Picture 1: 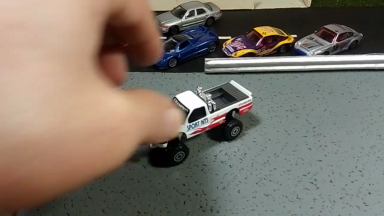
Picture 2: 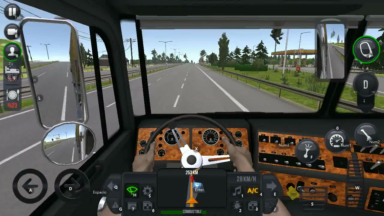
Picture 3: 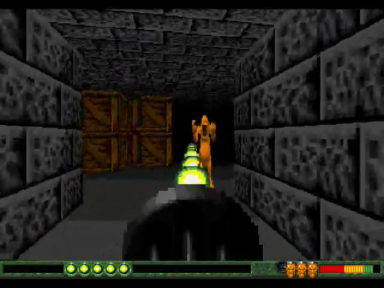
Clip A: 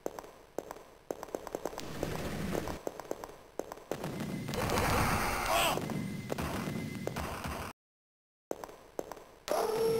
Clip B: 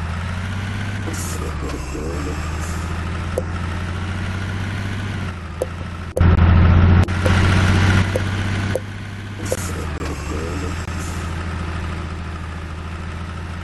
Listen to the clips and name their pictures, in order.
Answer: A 3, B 2